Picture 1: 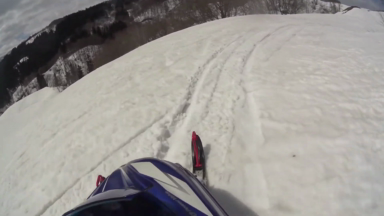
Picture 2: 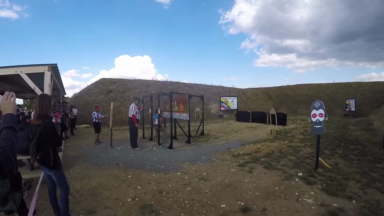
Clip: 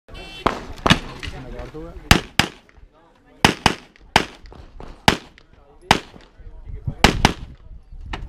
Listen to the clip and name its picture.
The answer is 2